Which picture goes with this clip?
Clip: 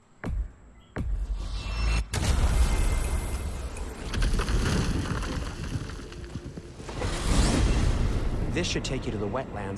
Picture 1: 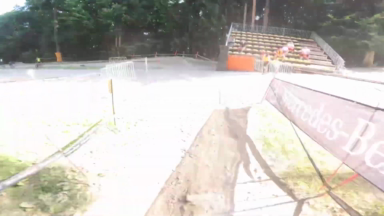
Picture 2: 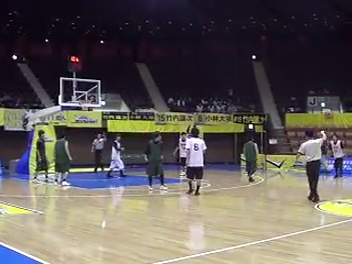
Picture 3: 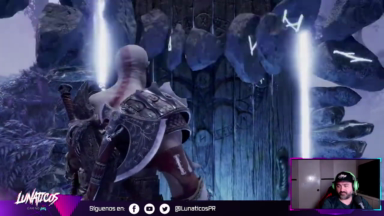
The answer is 3